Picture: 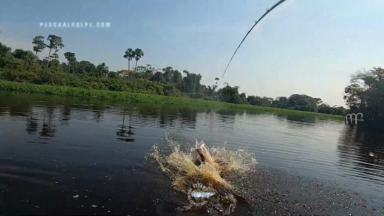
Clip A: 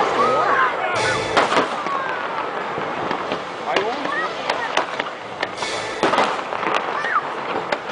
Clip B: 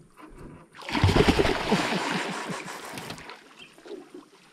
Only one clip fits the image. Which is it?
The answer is B